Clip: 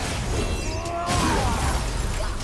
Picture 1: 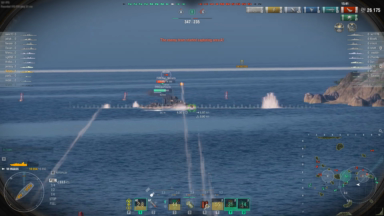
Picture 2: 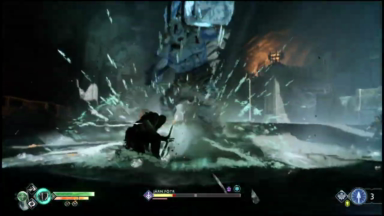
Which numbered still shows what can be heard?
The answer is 2